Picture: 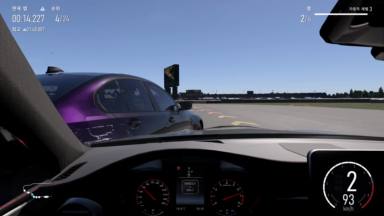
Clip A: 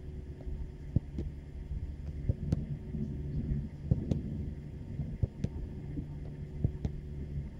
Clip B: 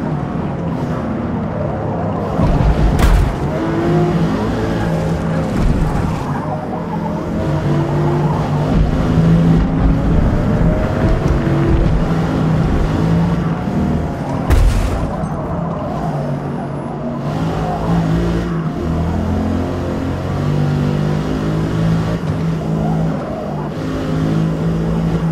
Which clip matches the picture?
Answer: B